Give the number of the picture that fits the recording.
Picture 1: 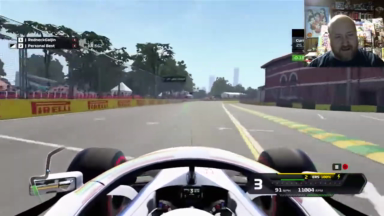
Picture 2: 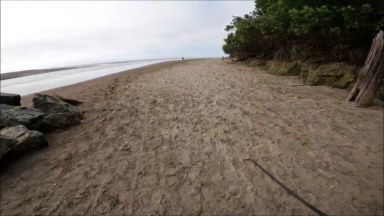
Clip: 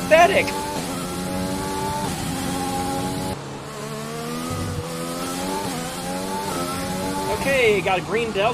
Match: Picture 1